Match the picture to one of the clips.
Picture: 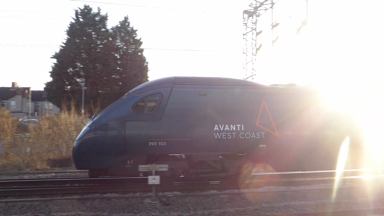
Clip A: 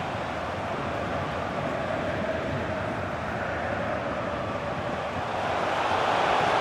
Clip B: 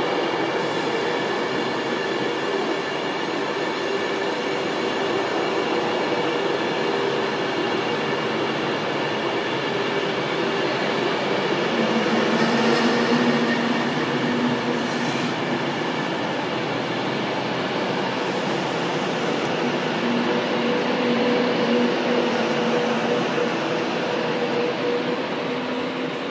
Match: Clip B